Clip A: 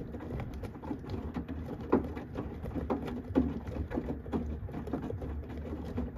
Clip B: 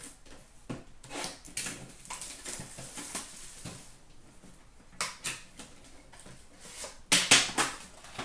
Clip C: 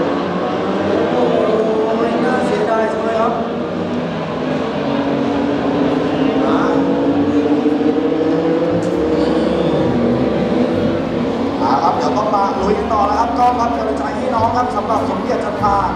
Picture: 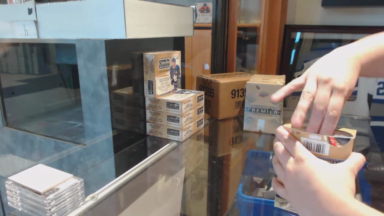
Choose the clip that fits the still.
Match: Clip B